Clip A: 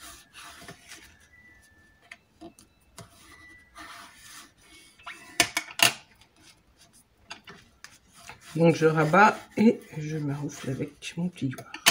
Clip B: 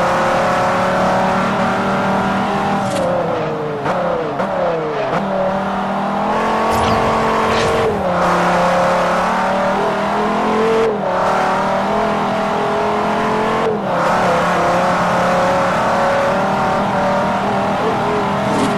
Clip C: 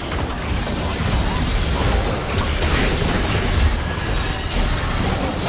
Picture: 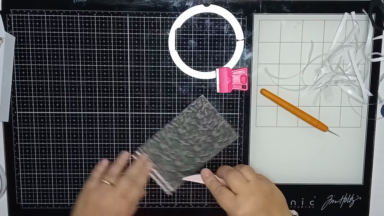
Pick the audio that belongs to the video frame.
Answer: A